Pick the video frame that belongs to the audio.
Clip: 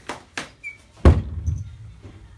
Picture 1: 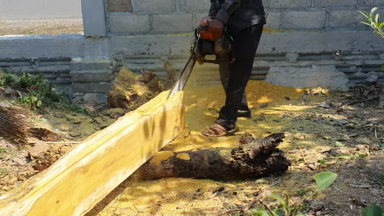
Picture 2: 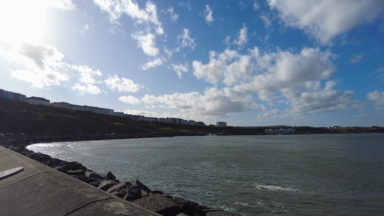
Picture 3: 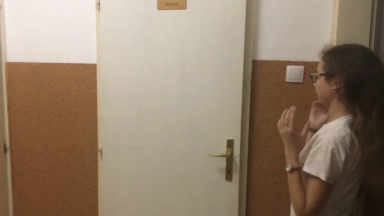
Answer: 3